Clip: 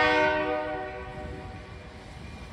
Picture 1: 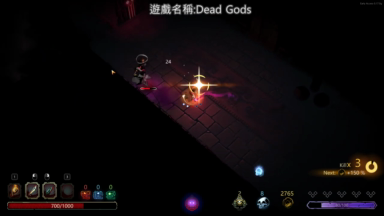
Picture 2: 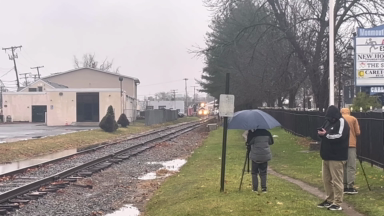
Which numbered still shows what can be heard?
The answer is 2